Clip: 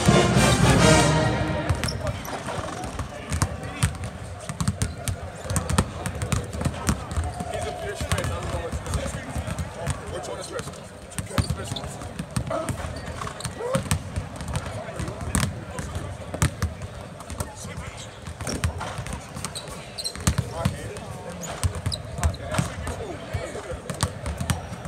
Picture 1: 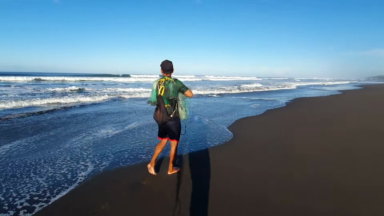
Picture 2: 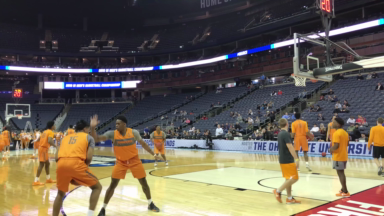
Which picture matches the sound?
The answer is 2